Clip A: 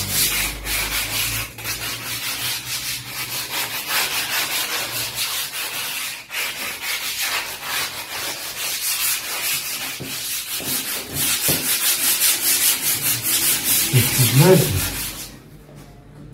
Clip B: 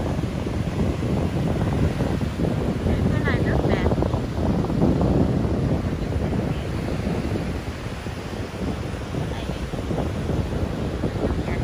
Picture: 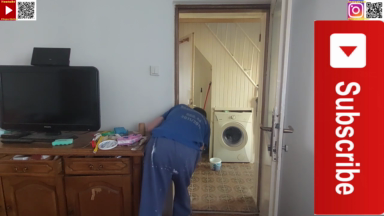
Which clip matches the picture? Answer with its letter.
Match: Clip A